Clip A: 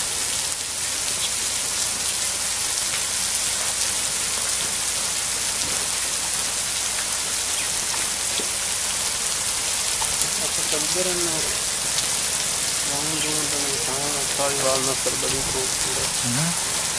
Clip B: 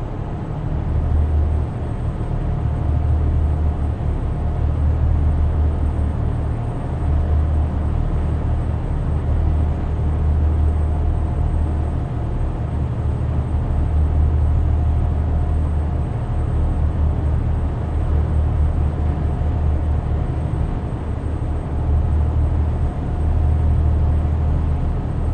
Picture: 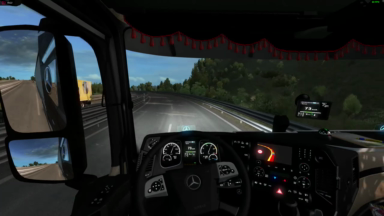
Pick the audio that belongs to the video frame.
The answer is B